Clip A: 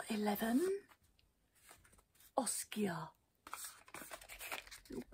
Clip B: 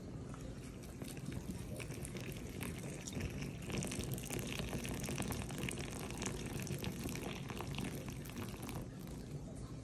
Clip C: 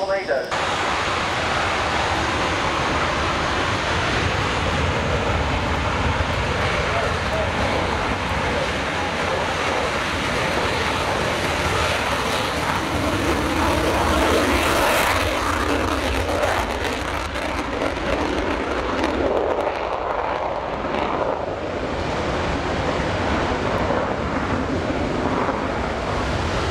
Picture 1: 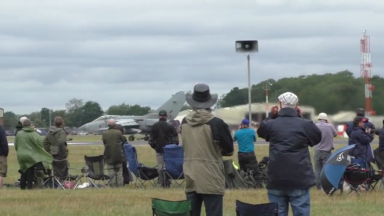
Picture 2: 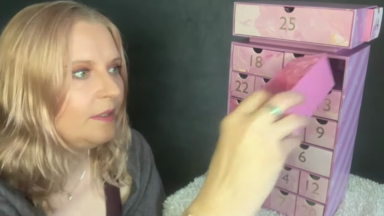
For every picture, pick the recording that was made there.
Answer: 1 C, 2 A